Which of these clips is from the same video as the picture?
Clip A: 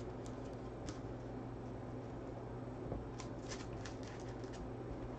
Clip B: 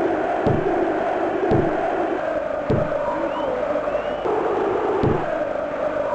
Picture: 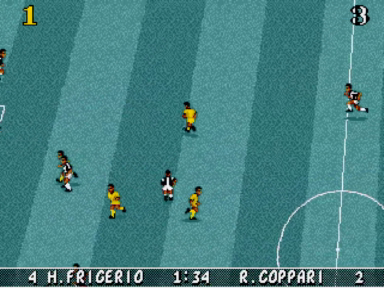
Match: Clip B